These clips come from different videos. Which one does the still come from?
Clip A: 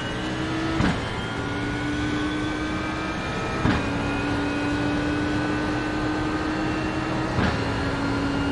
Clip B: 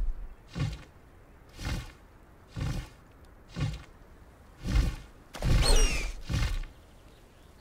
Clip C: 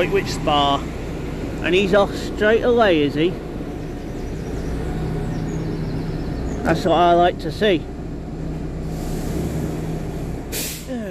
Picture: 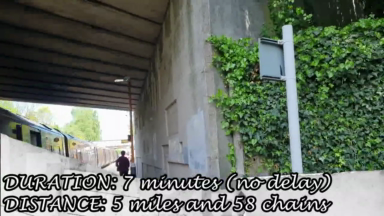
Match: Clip C